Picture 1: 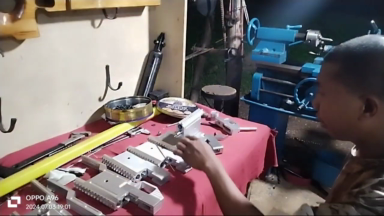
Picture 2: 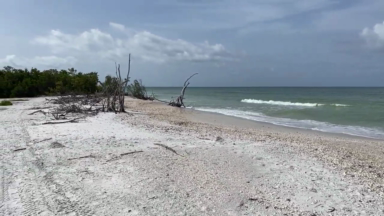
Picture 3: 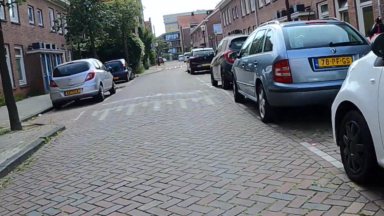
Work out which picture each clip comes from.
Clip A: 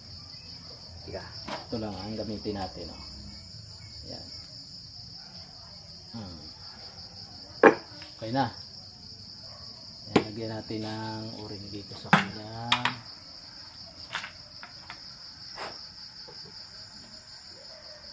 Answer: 1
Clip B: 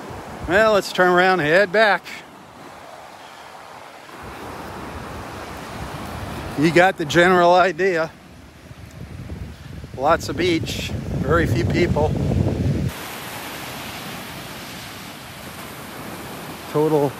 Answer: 2